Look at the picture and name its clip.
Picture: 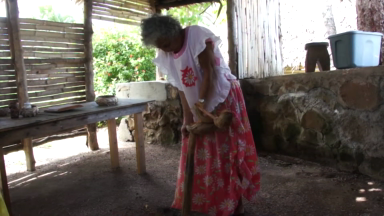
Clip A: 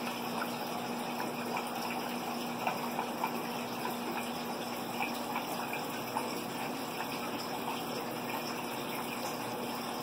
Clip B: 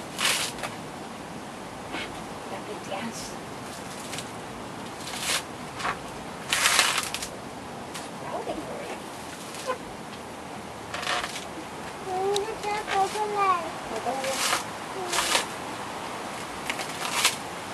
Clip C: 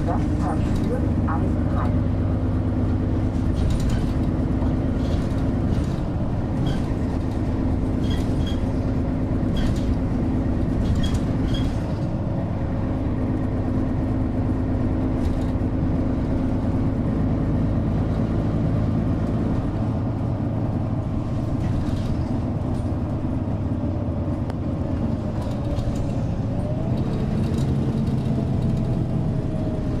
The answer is B